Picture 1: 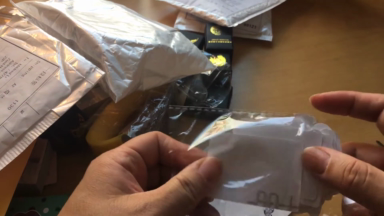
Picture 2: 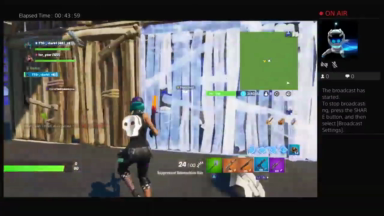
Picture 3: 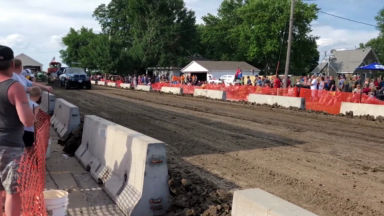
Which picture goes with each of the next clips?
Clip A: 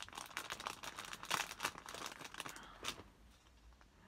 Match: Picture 1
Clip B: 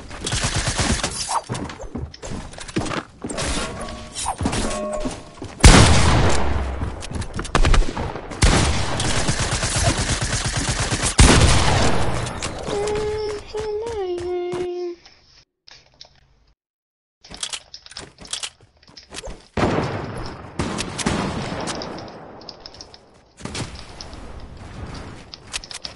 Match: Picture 2